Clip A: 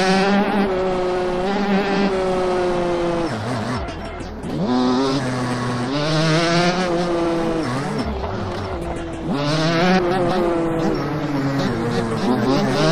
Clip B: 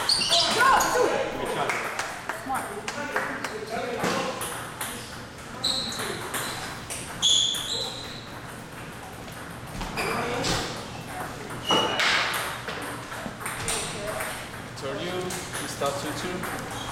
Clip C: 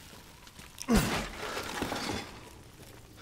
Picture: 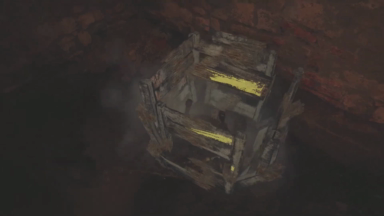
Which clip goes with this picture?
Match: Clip C